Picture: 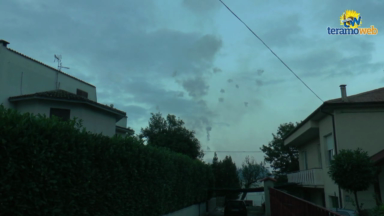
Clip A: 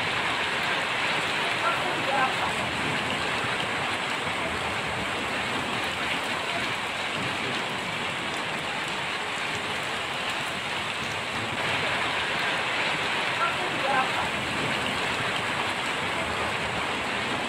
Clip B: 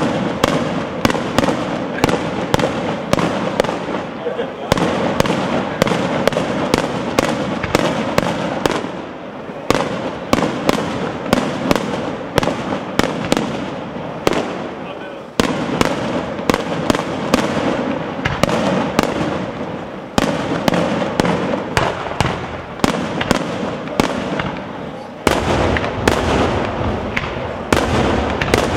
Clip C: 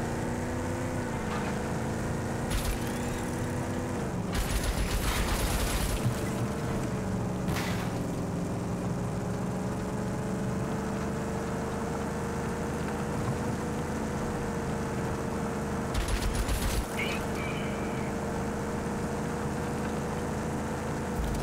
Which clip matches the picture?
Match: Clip B